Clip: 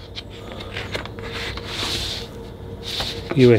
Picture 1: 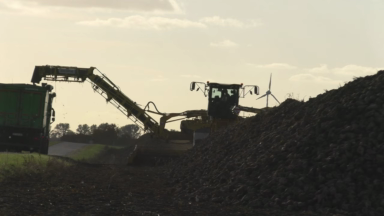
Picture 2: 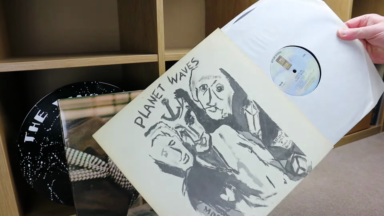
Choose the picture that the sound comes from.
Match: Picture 2